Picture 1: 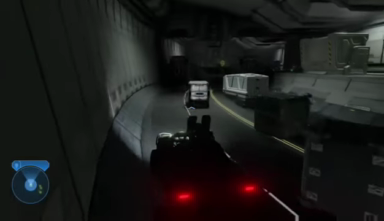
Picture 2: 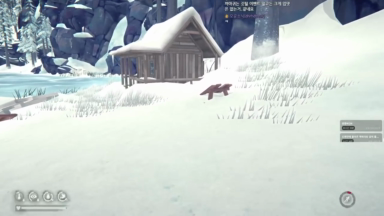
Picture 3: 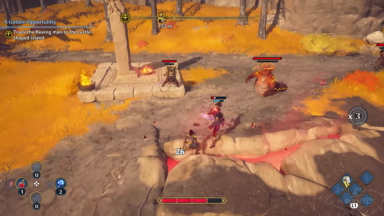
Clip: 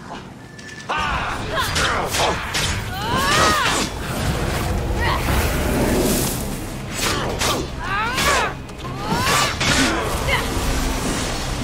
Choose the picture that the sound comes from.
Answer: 3